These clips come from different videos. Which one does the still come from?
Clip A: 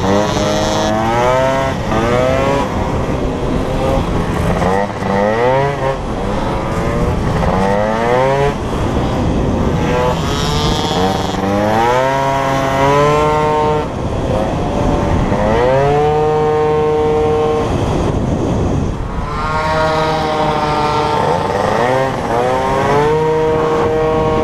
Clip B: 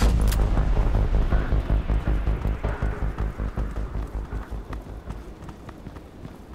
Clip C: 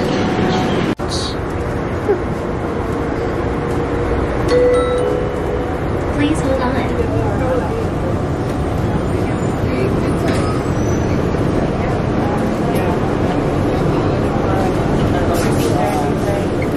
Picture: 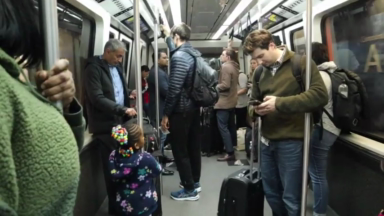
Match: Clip C